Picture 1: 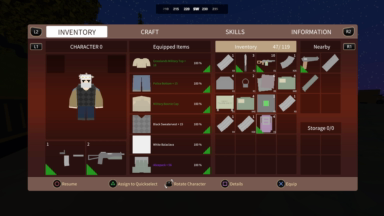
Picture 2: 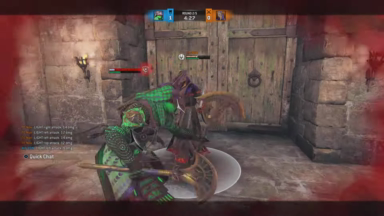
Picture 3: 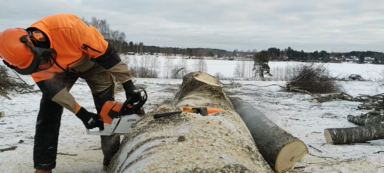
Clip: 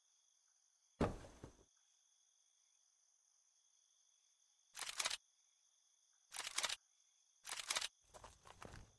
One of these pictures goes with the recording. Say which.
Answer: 1